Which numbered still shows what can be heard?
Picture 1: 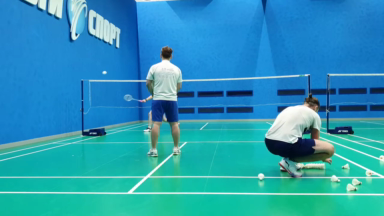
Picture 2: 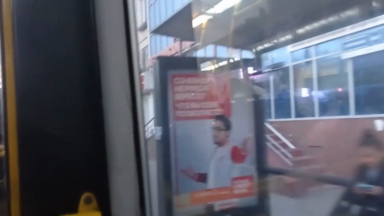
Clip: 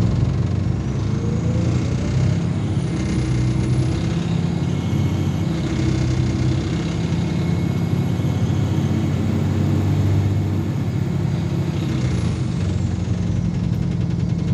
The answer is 2